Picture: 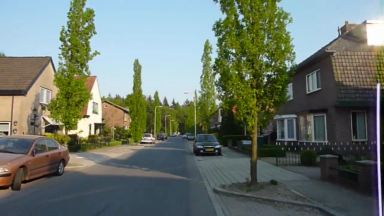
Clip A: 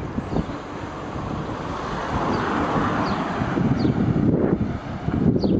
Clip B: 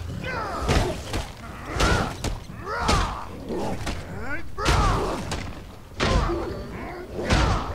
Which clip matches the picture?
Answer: A